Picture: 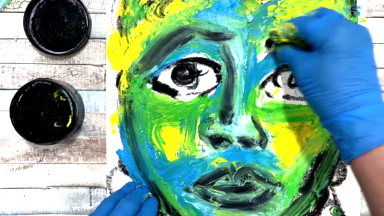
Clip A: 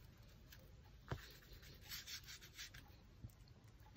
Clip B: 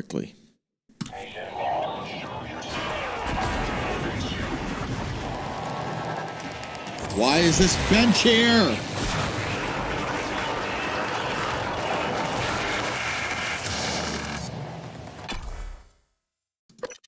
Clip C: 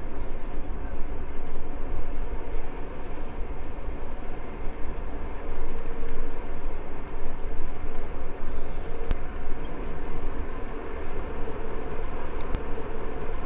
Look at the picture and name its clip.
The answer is A